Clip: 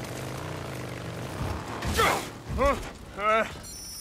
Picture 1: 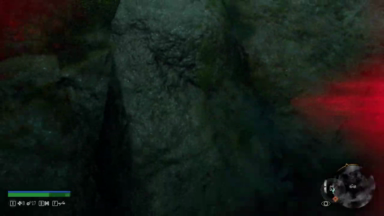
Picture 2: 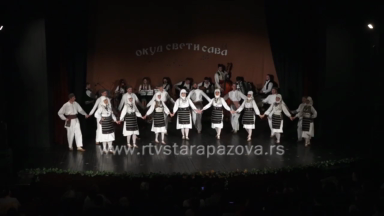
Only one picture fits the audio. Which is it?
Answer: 1